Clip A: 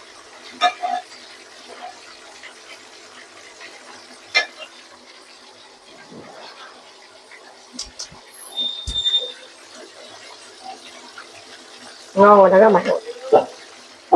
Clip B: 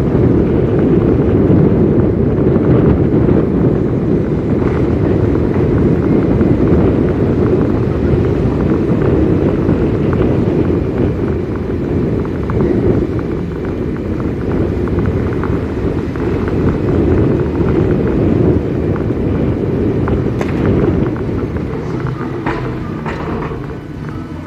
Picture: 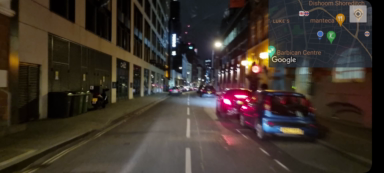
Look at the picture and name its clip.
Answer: B